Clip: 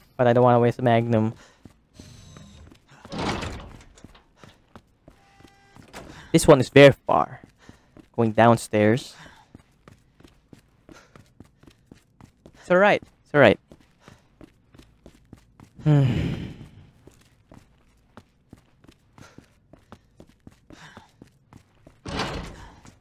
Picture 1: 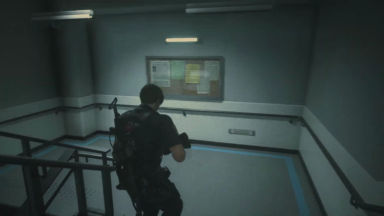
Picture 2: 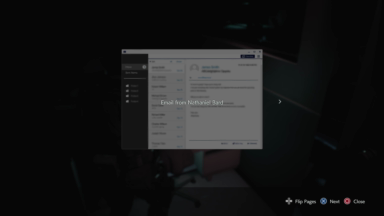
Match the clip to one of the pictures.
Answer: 1